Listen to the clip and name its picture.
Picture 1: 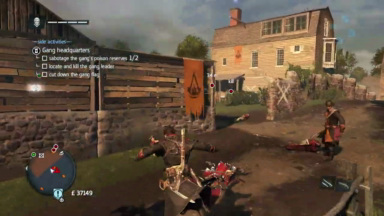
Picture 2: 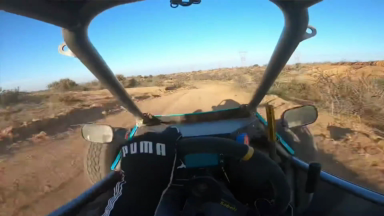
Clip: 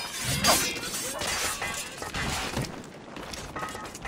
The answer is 1